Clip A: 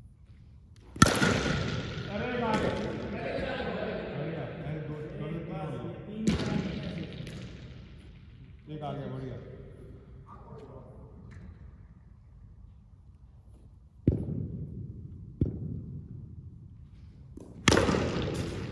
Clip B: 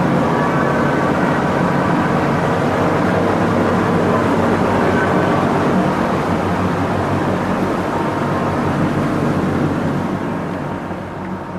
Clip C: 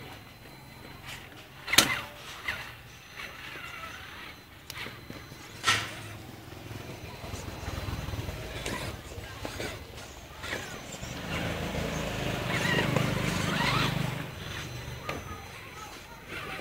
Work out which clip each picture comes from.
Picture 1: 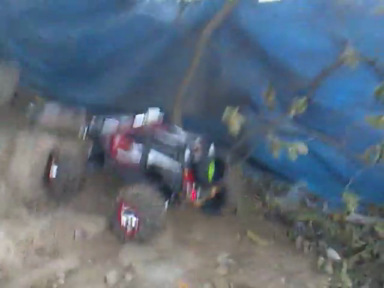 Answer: C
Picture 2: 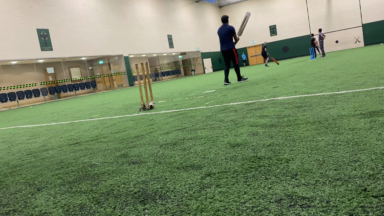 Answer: A